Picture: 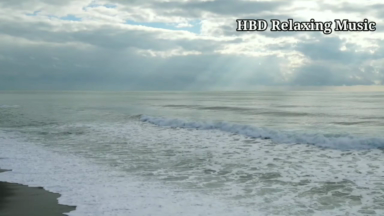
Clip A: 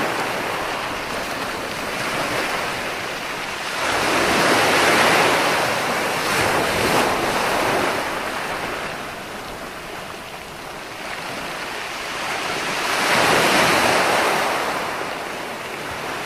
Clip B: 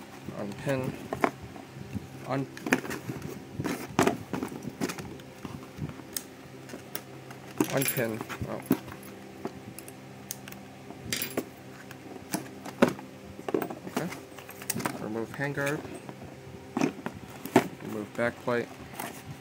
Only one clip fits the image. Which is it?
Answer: A